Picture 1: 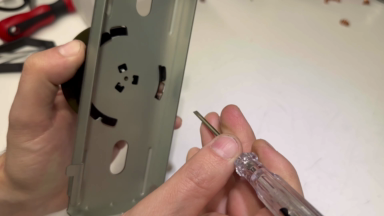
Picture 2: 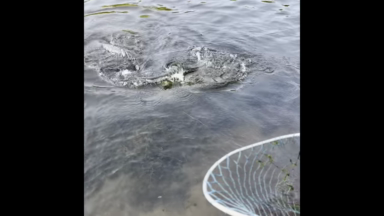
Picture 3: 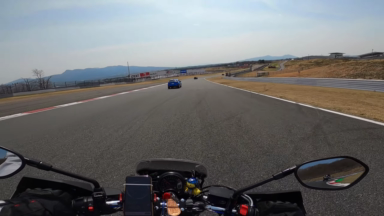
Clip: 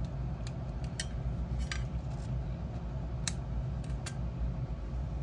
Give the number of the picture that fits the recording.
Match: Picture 1